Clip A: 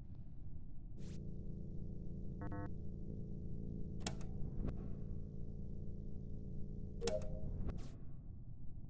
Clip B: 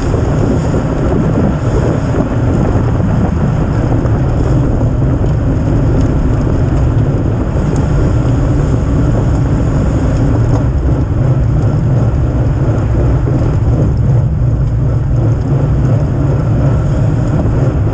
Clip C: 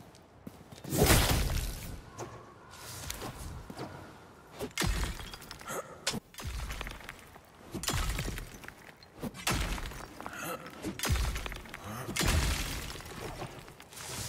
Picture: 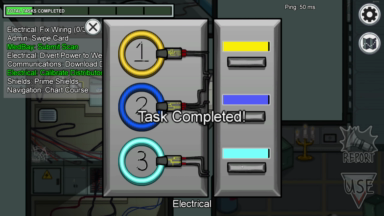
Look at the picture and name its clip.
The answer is A